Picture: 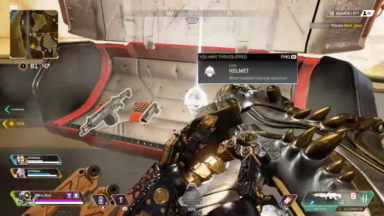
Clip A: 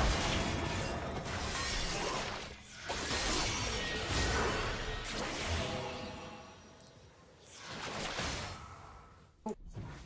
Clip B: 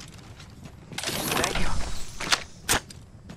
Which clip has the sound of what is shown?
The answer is B